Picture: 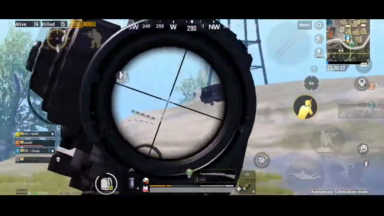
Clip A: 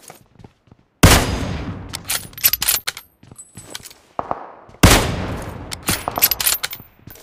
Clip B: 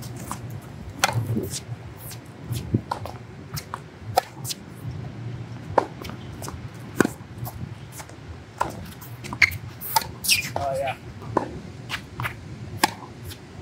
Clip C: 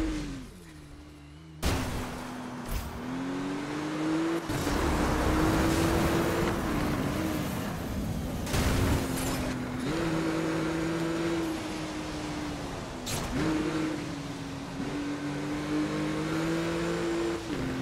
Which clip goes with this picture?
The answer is A